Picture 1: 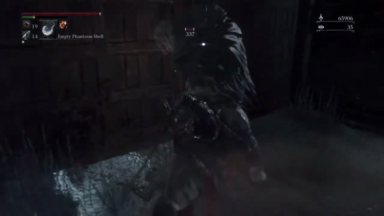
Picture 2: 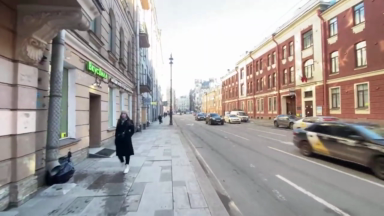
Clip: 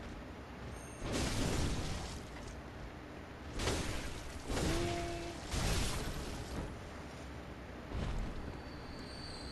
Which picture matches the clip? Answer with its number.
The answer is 1